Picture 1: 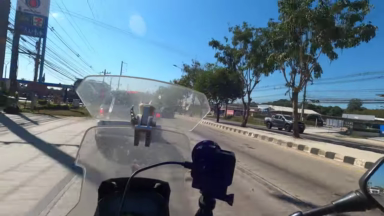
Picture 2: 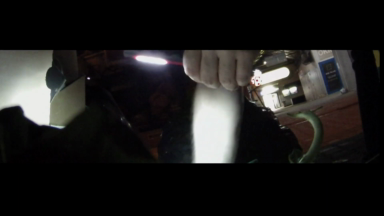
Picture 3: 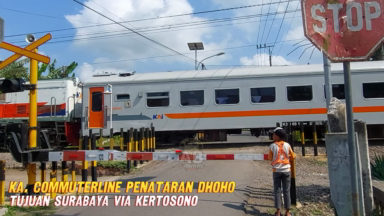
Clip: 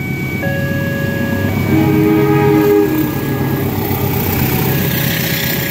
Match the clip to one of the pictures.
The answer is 3